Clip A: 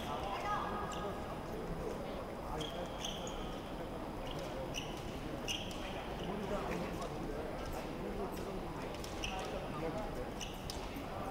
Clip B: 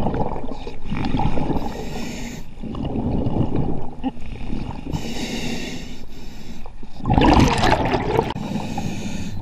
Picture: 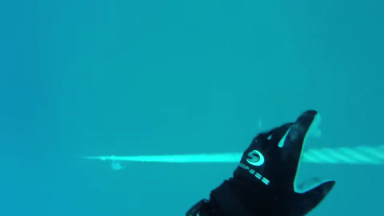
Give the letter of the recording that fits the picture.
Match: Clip B